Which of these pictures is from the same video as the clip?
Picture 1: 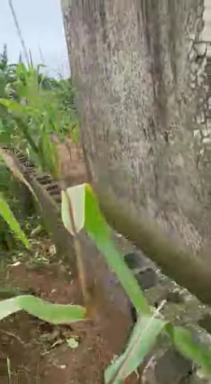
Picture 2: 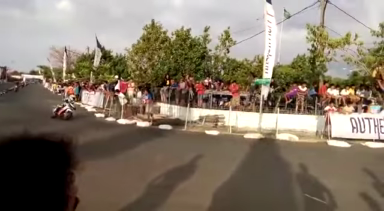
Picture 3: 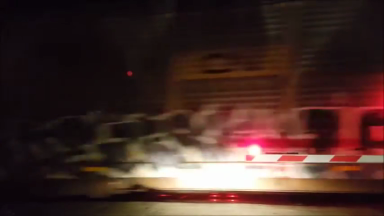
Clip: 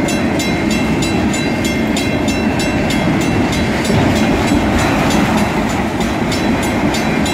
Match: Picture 3